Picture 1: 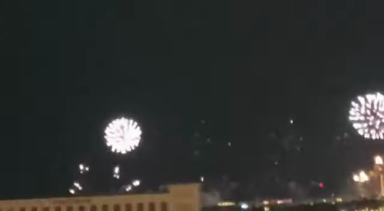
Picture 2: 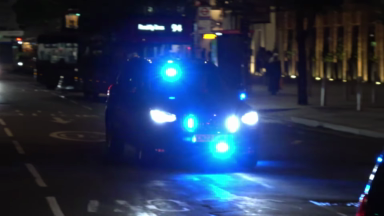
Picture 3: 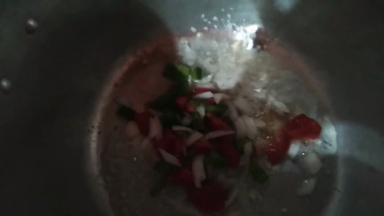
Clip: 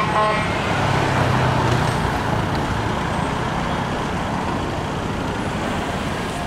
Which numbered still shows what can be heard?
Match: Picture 2